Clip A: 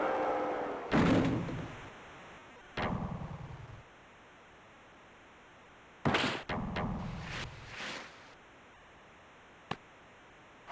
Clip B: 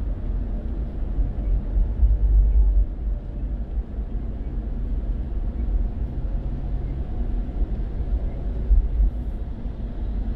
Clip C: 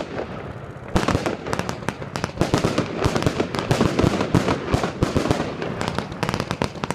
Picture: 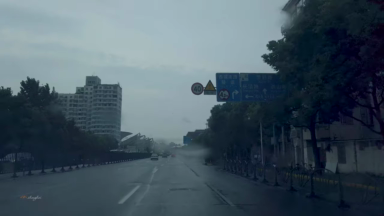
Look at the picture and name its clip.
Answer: B